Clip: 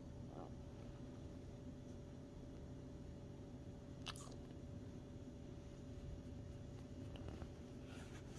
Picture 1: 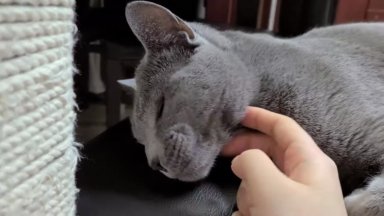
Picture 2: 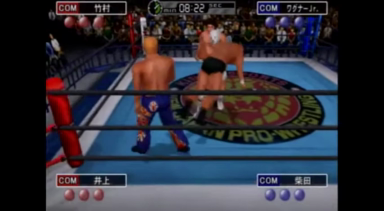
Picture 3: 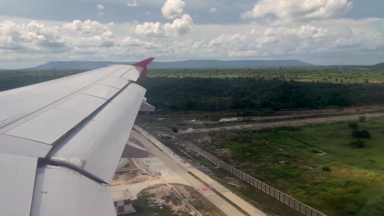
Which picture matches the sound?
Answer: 1